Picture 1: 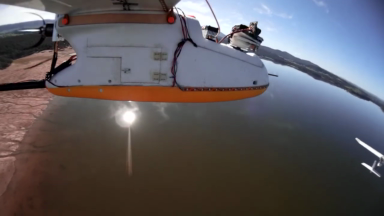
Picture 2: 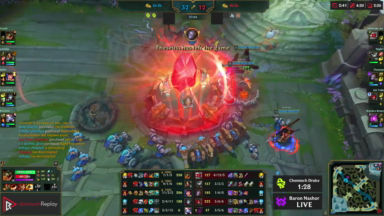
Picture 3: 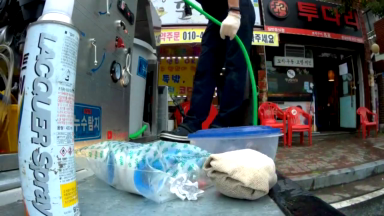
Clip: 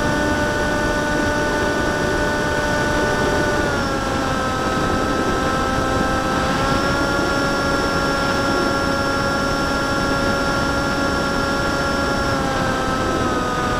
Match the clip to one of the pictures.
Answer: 1